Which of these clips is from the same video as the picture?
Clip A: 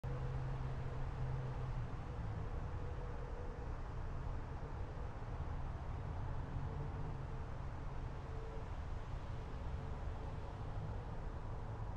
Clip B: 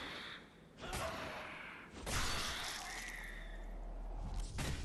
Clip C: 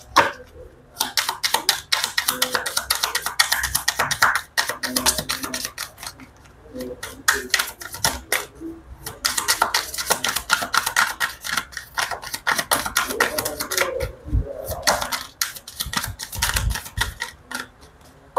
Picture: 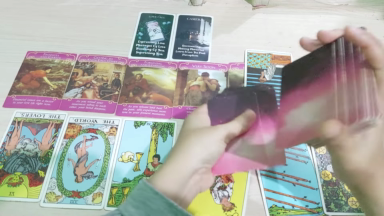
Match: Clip C